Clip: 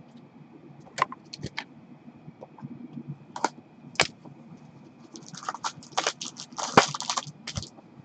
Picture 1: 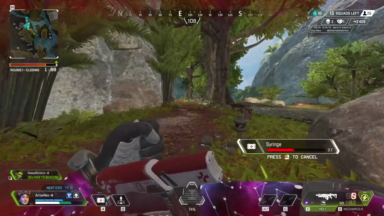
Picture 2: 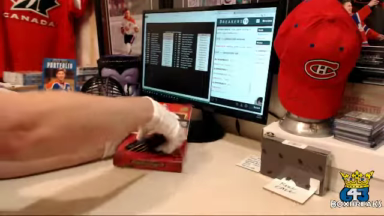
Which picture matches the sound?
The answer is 2